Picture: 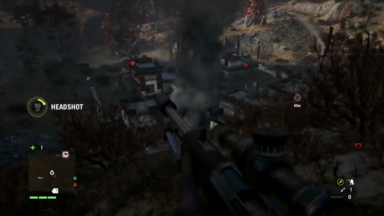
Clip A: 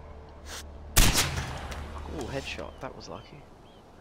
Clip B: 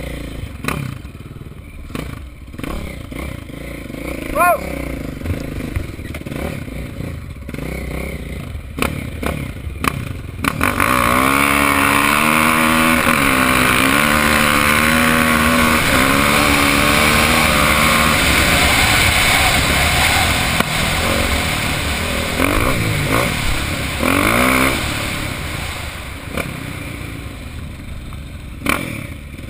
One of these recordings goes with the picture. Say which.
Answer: A